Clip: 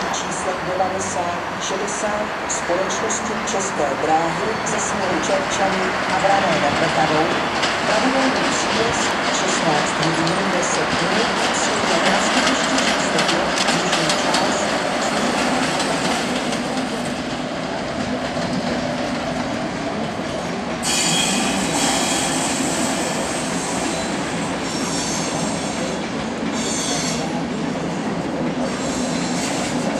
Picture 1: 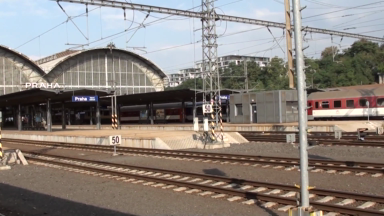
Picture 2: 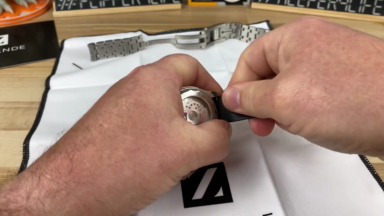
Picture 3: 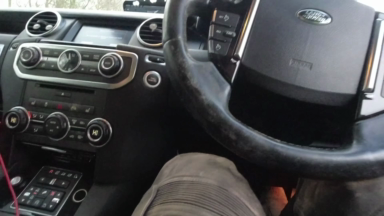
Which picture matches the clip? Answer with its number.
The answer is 1